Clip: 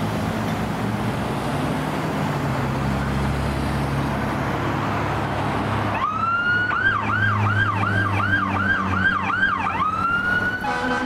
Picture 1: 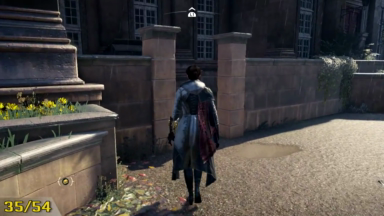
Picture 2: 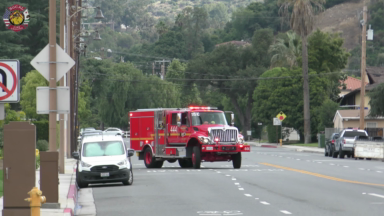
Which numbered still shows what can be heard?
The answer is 2